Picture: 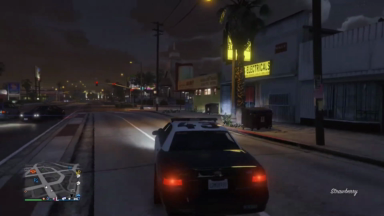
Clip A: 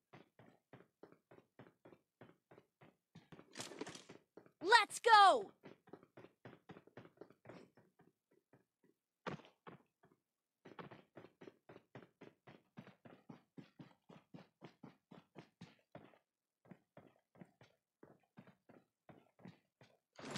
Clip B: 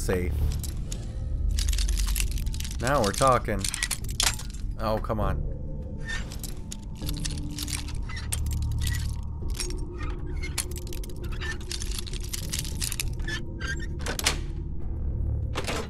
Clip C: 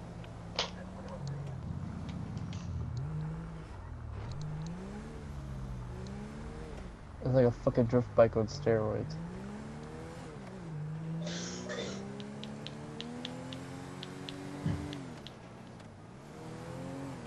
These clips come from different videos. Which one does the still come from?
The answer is C